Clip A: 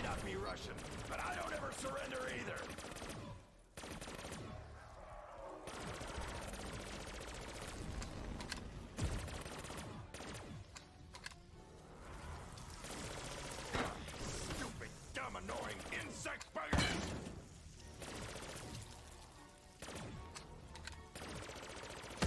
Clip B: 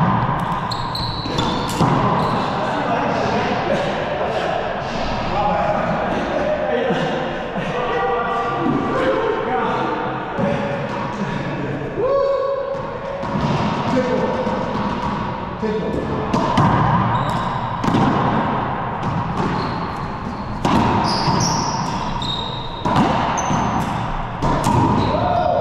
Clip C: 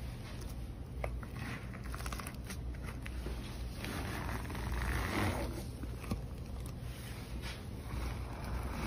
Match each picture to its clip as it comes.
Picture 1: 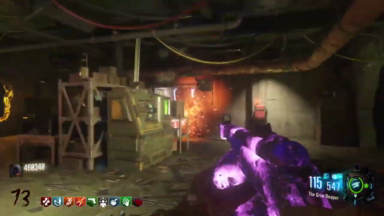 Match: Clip A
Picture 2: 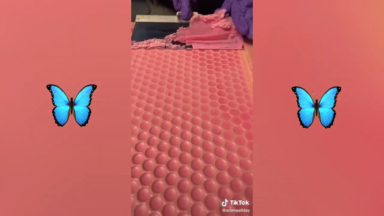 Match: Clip C